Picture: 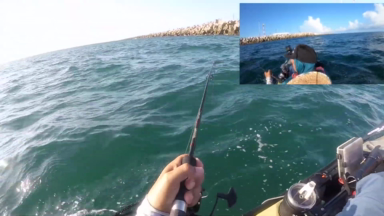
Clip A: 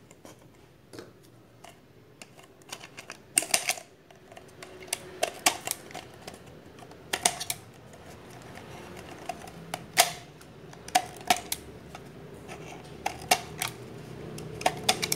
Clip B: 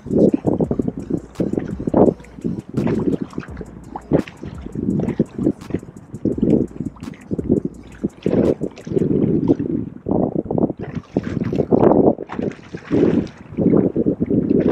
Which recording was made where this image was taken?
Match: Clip B